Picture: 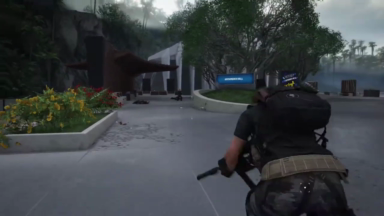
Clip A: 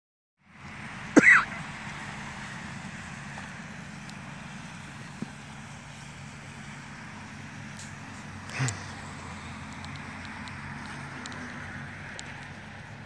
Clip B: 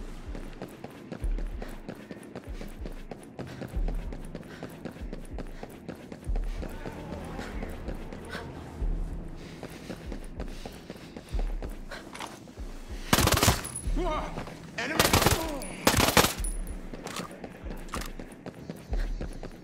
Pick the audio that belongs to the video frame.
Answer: B